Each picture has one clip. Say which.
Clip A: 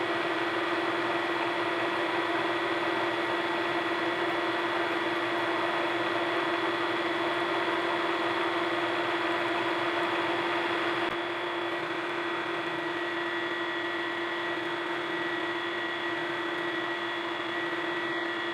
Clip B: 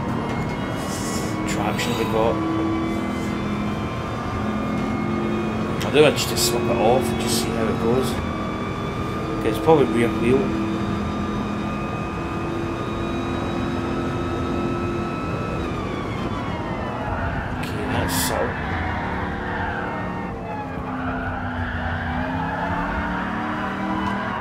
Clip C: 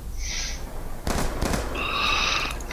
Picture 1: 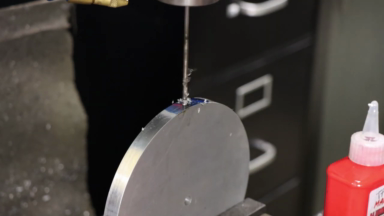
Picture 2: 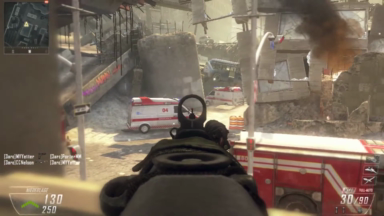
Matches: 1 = A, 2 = C